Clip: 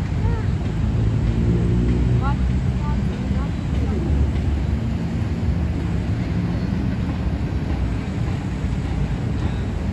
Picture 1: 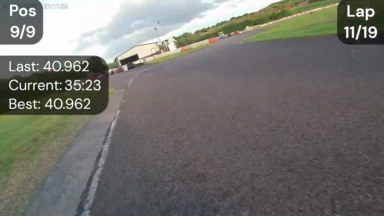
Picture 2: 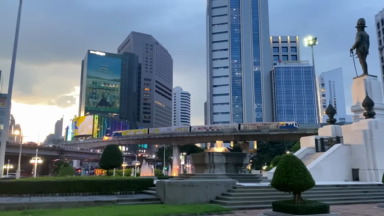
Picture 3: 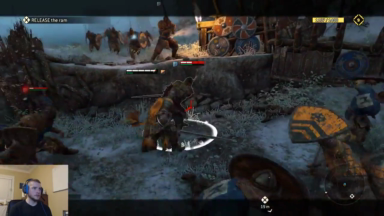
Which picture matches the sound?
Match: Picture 2